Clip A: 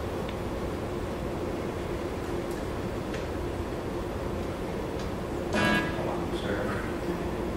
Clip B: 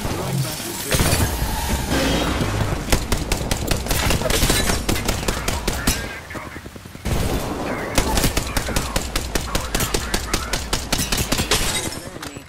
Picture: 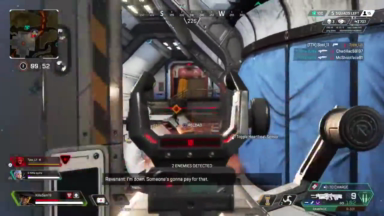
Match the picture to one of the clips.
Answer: B